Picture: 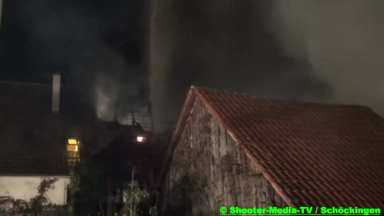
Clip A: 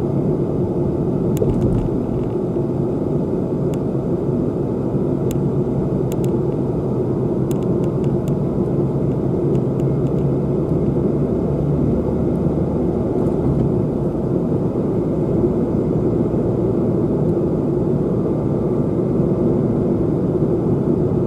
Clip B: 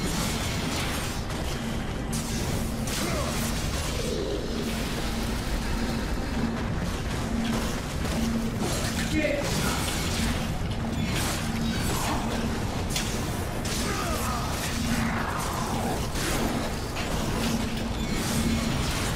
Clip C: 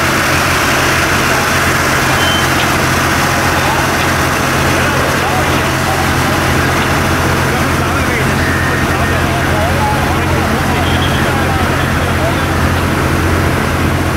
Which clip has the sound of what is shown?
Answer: C